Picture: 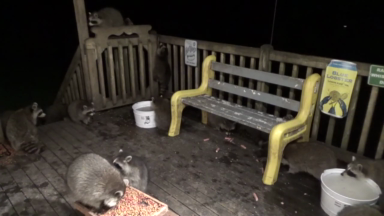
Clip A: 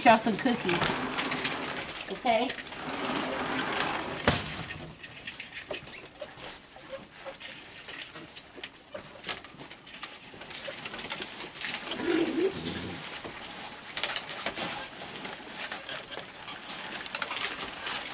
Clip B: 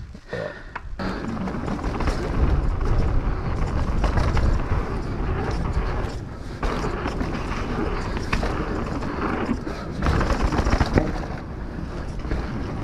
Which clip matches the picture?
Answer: A